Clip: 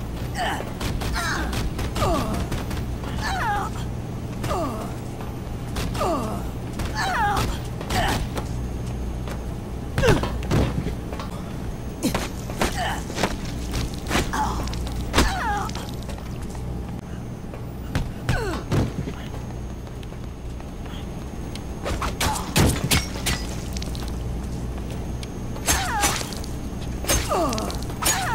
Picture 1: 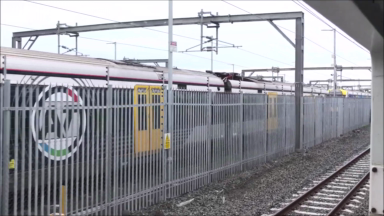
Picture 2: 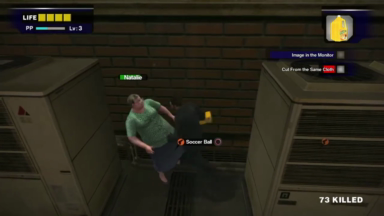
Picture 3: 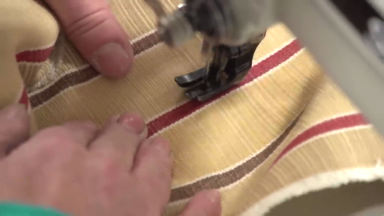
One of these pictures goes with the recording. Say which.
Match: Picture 2